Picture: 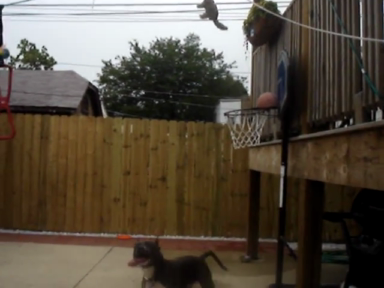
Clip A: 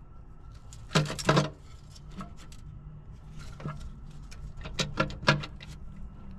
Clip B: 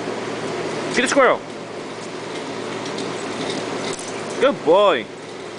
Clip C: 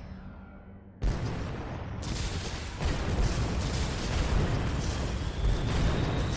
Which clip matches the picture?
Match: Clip B